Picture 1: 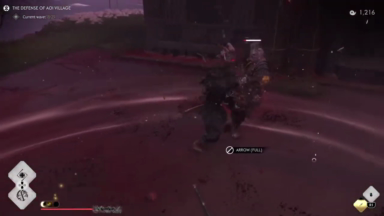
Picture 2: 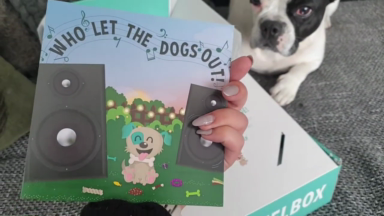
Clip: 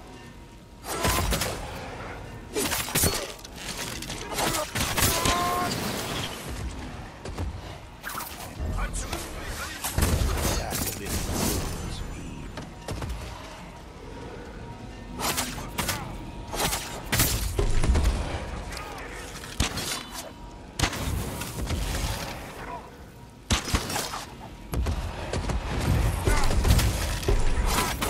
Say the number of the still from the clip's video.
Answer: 1